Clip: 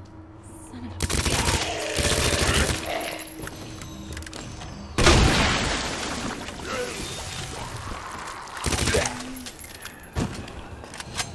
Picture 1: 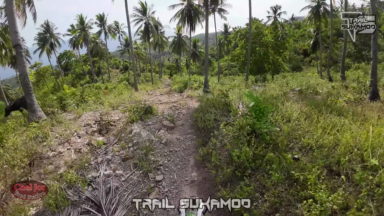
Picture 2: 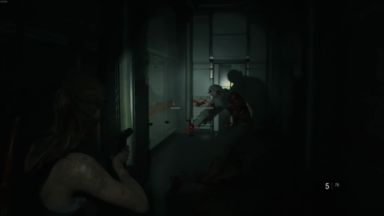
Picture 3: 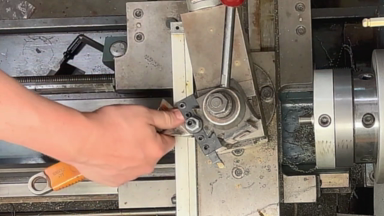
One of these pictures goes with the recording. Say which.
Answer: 2